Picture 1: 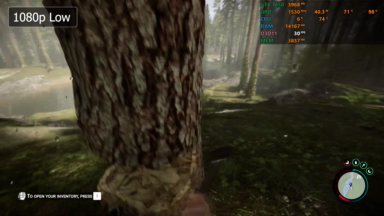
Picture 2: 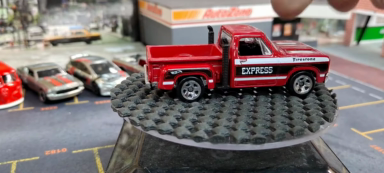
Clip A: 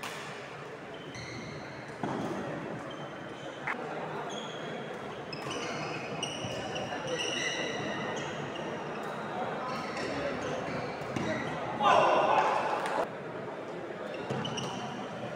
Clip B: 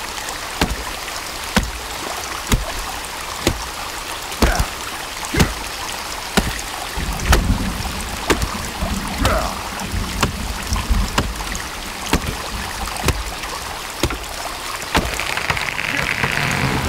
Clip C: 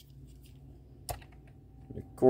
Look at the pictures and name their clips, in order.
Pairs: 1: B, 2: C